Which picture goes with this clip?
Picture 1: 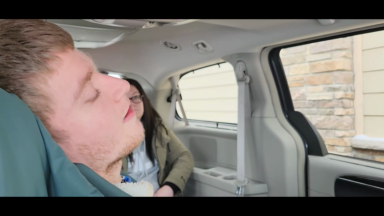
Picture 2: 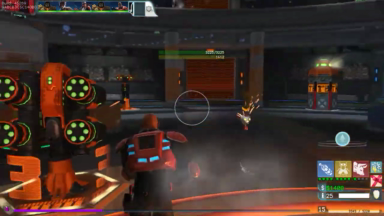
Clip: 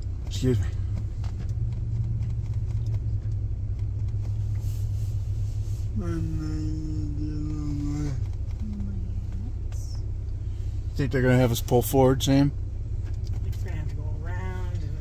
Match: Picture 1